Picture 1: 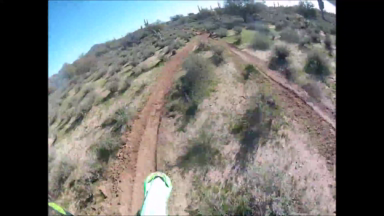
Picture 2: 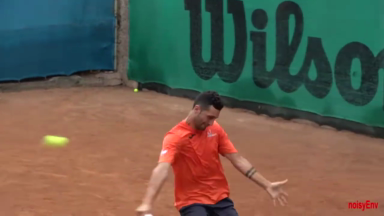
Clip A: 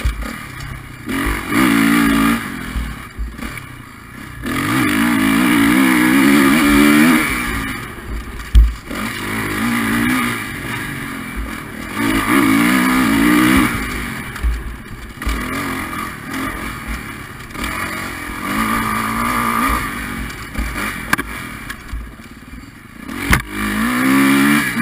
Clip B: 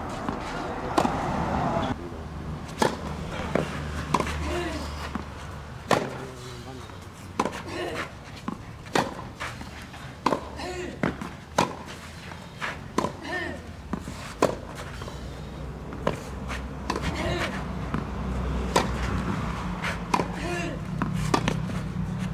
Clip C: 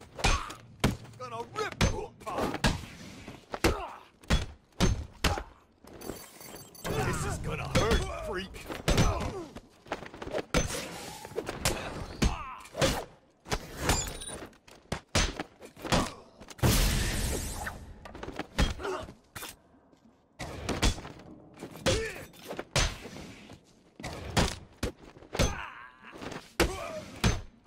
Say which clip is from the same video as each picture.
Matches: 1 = A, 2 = B